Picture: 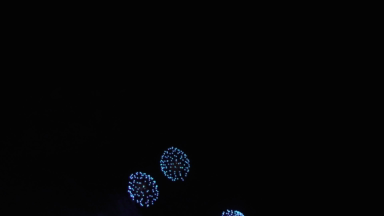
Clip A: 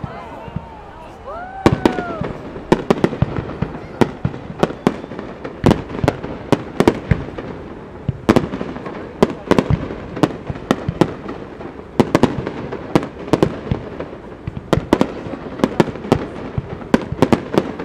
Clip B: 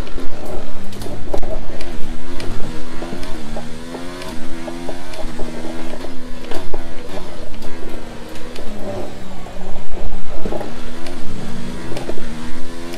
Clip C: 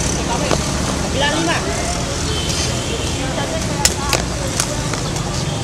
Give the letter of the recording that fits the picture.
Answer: A